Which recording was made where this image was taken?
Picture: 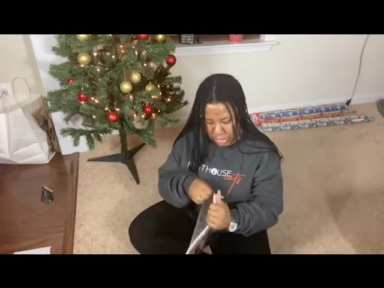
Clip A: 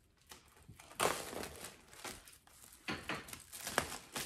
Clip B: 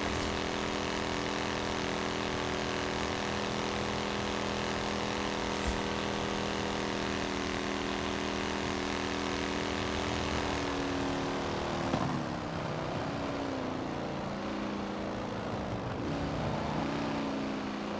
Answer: A